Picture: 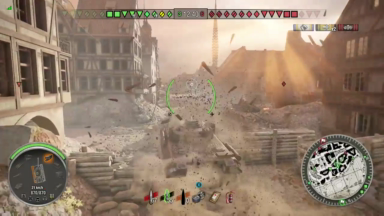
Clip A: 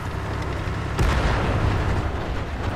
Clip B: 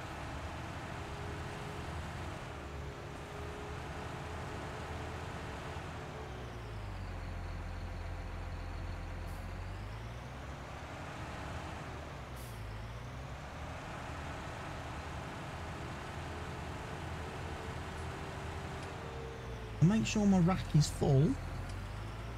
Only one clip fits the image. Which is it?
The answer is A